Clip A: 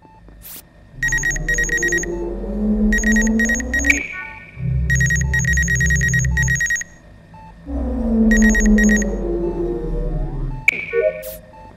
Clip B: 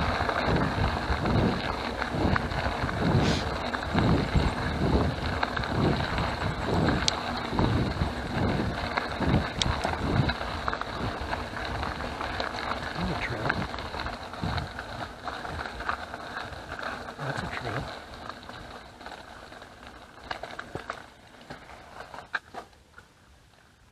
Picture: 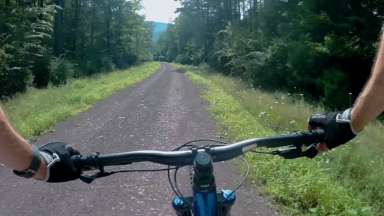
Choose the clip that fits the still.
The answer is B